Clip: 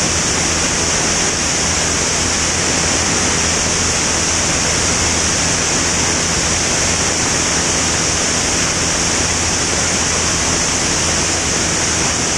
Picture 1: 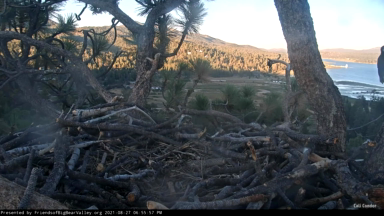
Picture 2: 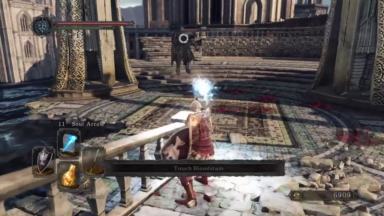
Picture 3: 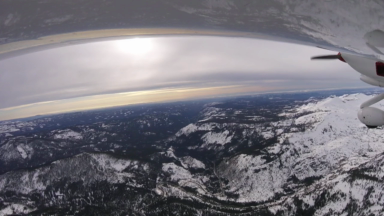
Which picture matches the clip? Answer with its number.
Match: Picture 3